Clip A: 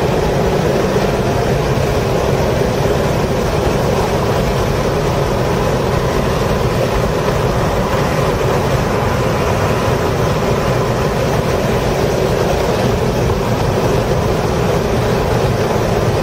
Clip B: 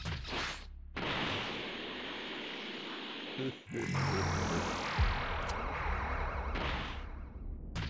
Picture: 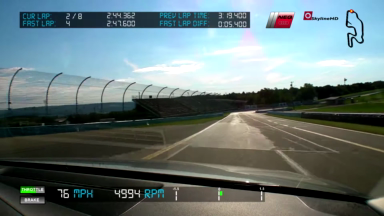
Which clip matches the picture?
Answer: A